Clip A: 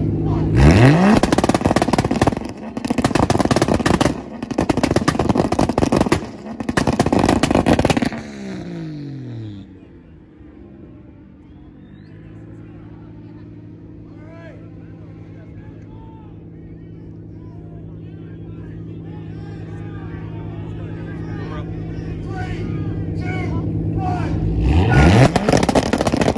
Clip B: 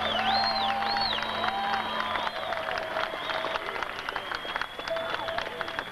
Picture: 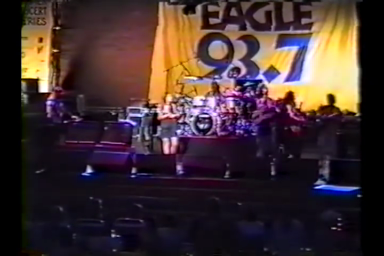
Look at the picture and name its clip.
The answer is B